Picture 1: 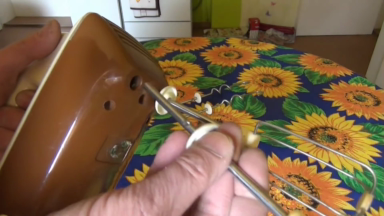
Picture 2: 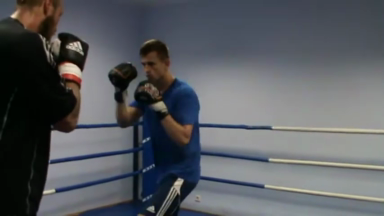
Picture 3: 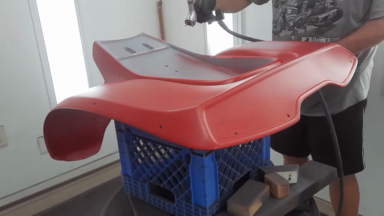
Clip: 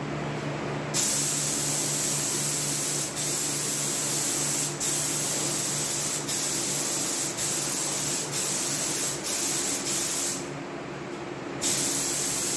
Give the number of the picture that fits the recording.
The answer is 3